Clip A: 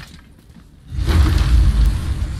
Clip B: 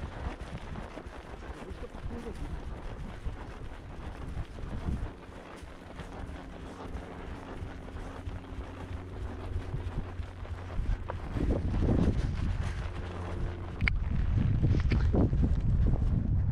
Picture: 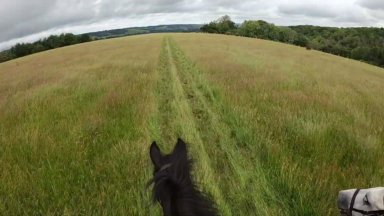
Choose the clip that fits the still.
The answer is B